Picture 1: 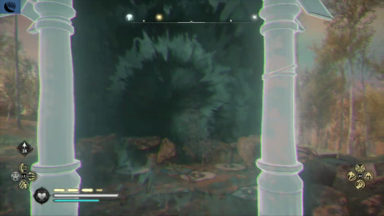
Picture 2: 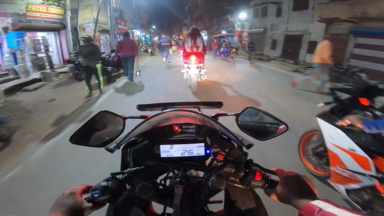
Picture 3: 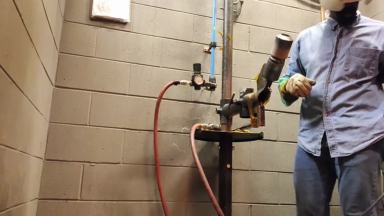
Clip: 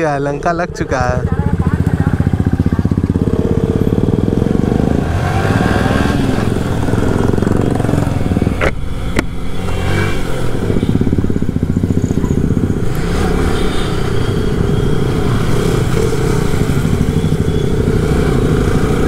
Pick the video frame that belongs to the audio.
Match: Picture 2